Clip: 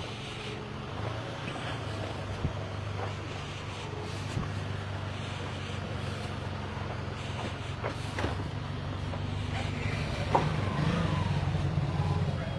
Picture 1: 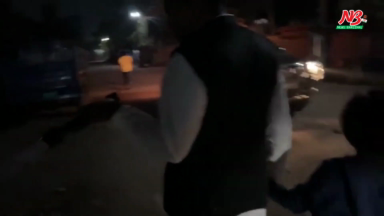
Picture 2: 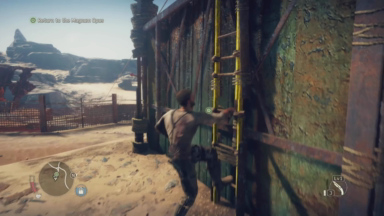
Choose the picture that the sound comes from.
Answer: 1